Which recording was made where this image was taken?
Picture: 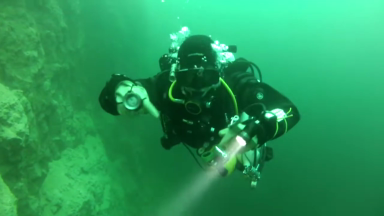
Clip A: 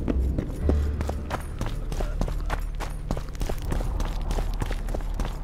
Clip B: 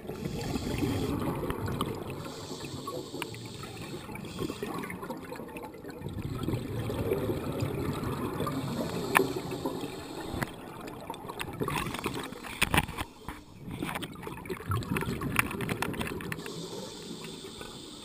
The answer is B